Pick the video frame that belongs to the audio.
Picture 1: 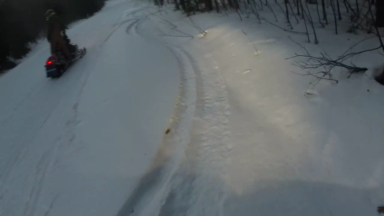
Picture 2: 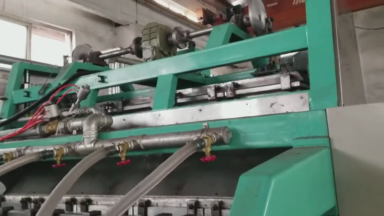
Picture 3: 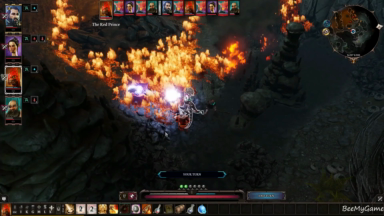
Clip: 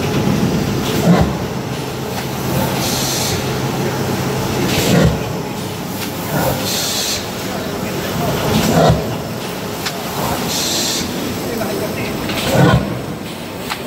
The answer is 2